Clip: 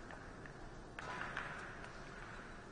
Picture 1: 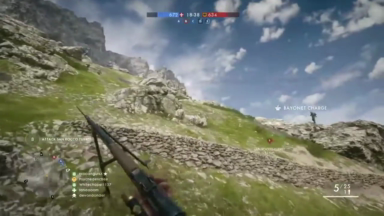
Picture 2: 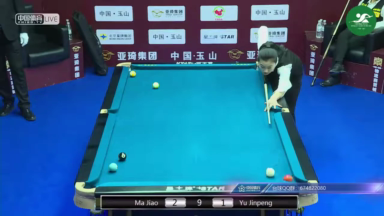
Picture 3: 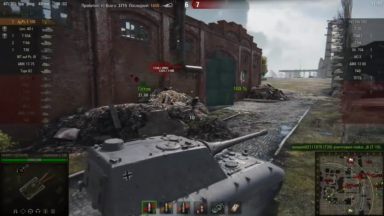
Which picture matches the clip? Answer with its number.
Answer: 2